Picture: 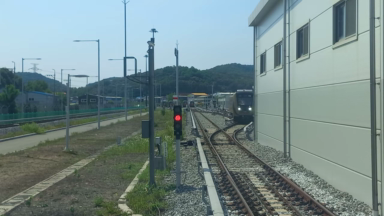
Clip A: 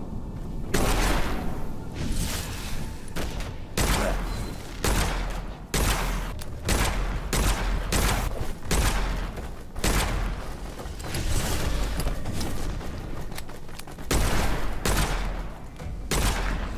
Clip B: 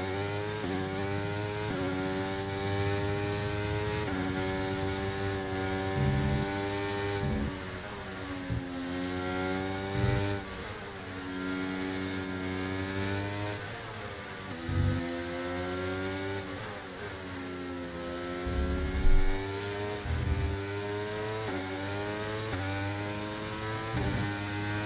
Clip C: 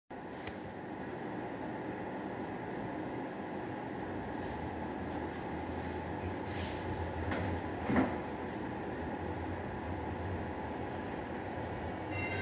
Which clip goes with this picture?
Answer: C